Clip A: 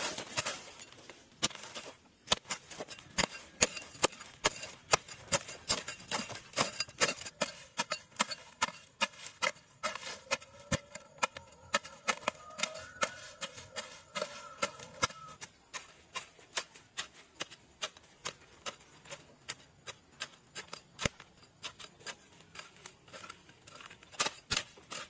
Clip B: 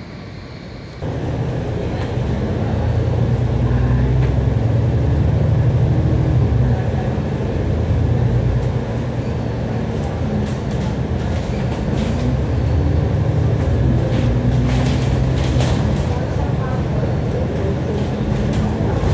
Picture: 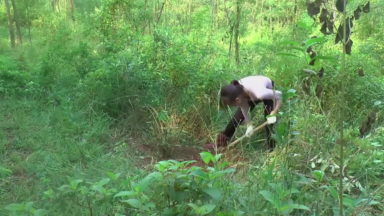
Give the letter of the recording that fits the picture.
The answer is A